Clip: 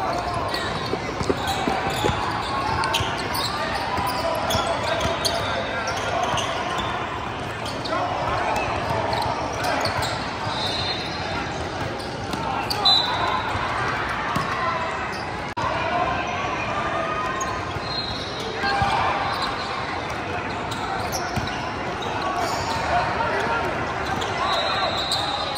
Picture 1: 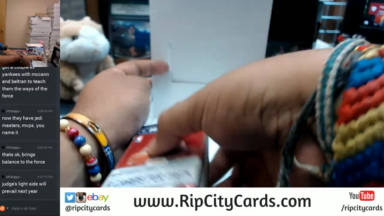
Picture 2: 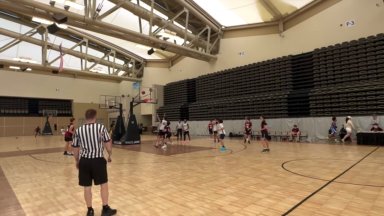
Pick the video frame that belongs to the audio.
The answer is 2